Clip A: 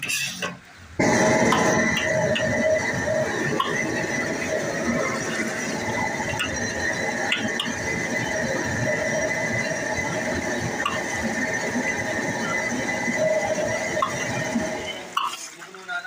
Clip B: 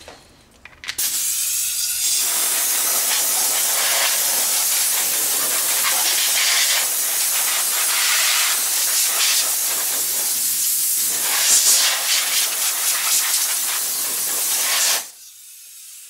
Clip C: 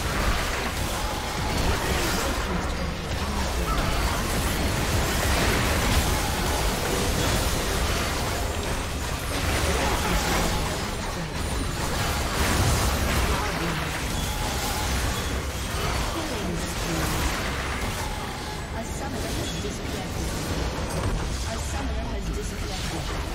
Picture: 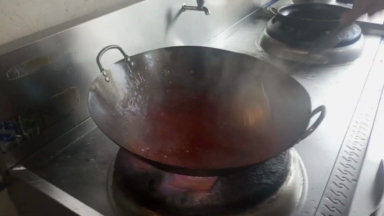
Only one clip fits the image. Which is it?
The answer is A